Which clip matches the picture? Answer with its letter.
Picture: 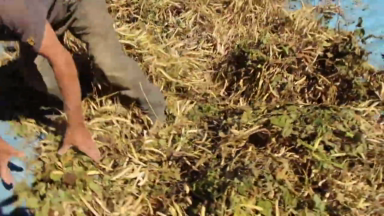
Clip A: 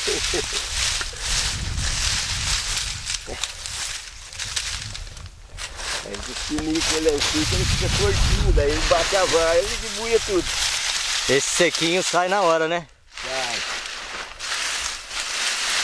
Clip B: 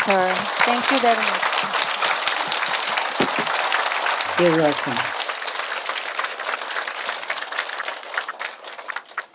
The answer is A